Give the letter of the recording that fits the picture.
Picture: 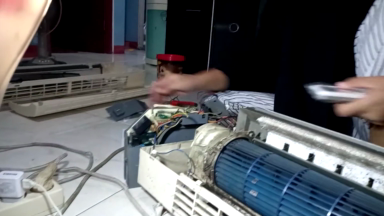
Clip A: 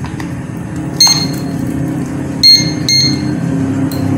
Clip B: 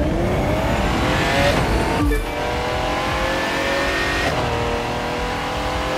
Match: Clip A